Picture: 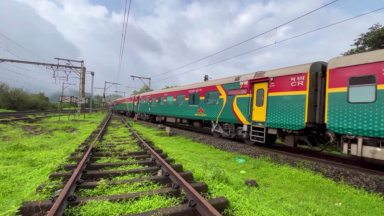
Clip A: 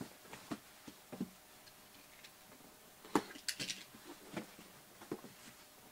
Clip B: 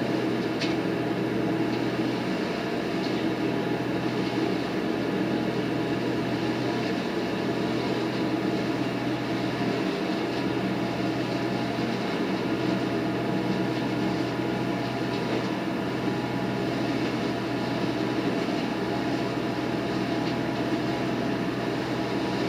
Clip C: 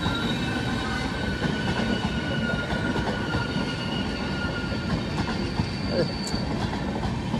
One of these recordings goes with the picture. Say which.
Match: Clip C